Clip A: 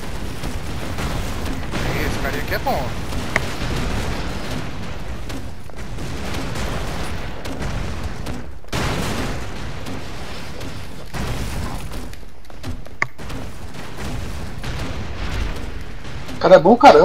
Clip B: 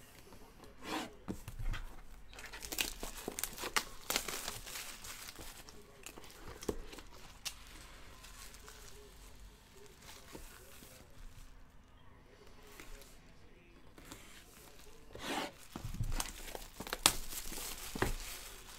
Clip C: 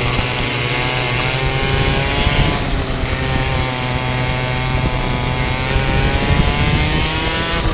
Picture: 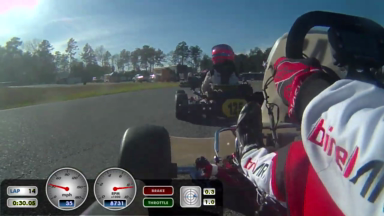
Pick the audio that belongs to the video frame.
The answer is C